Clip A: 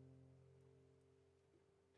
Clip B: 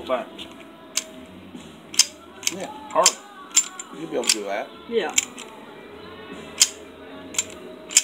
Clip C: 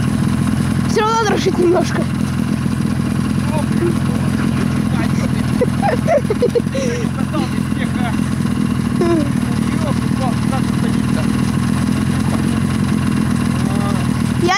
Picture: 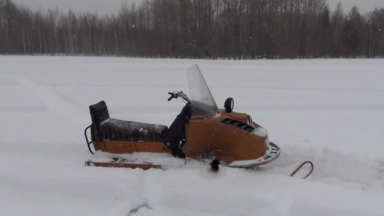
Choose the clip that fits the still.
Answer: C